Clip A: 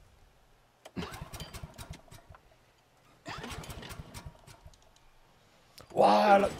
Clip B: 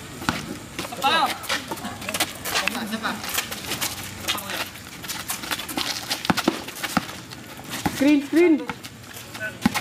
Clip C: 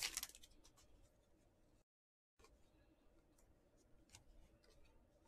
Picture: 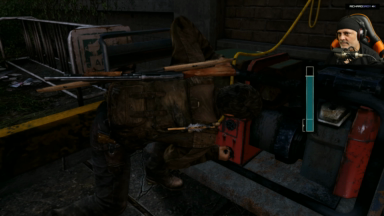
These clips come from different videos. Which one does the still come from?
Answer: A